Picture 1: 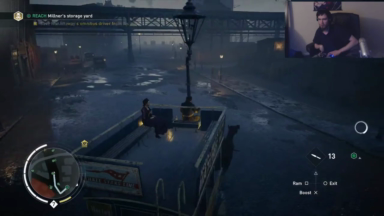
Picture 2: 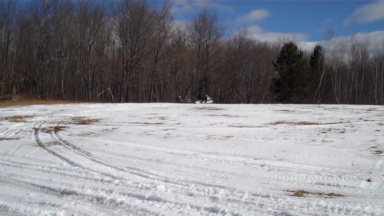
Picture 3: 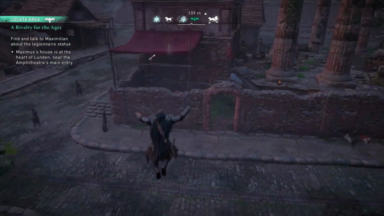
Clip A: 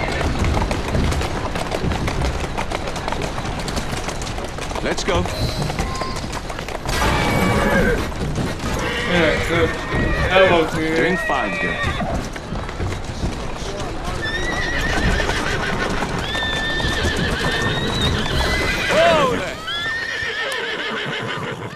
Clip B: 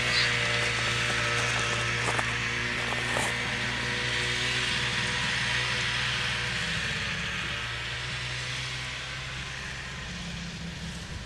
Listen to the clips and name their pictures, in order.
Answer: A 1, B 2